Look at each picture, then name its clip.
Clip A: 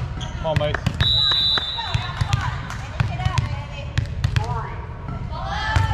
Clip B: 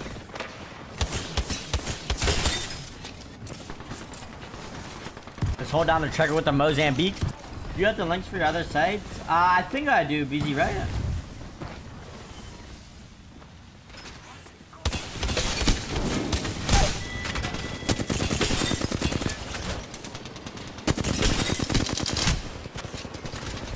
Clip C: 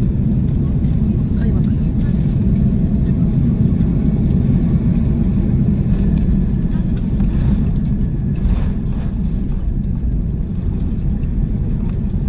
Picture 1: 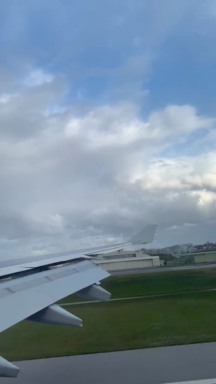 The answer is C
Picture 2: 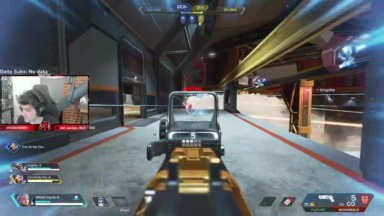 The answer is B